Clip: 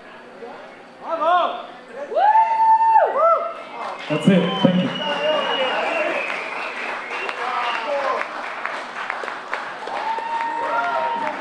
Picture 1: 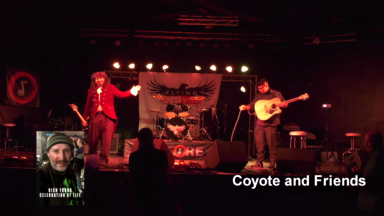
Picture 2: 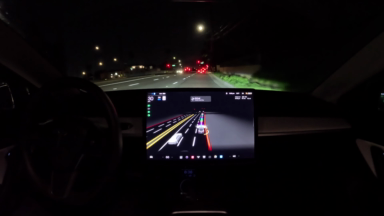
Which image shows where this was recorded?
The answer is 1